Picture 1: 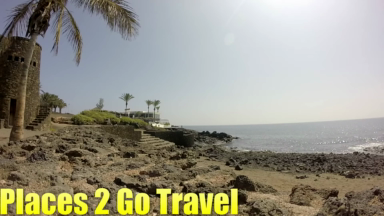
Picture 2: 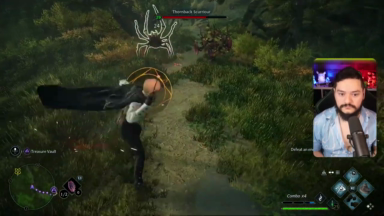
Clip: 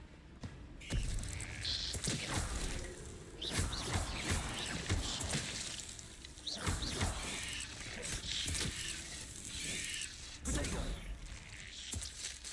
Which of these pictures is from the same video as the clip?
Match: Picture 2